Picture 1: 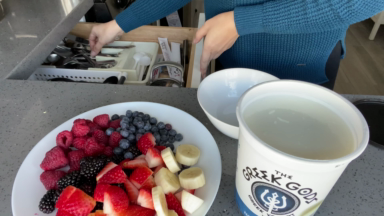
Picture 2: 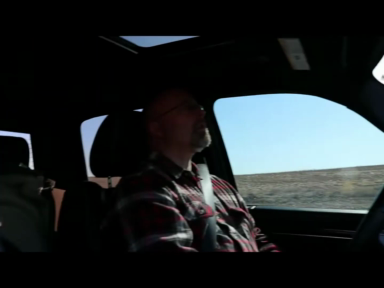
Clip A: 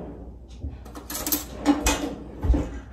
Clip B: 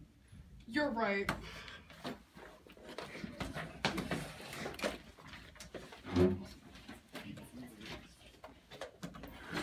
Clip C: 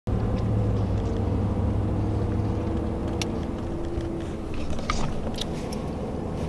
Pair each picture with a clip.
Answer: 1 A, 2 C